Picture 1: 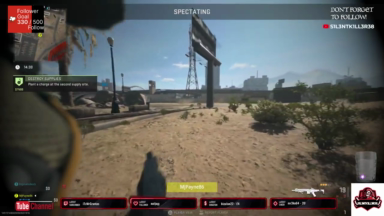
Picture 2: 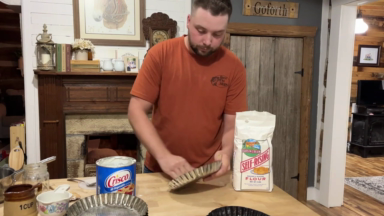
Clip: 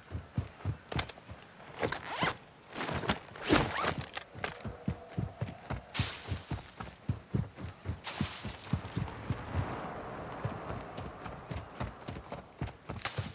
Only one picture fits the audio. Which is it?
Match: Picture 1